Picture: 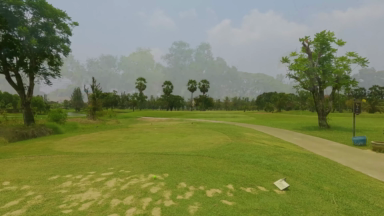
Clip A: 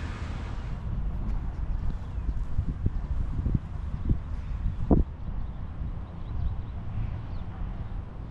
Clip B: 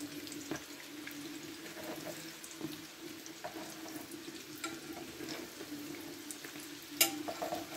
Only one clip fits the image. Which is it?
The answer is A